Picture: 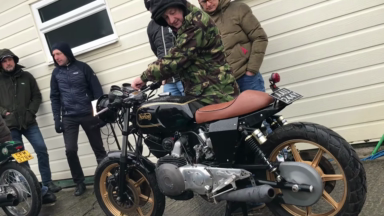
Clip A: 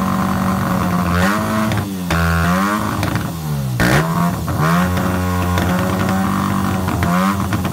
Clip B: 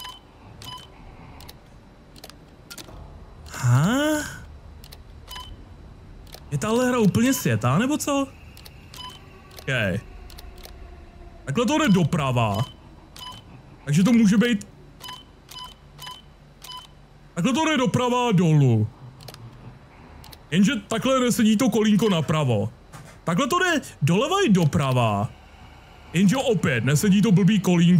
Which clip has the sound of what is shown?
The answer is A